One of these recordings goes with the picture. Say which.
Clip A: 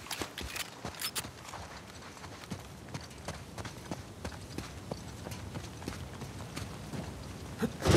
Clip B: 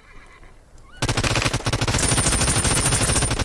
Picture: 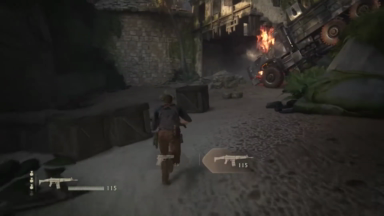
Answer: A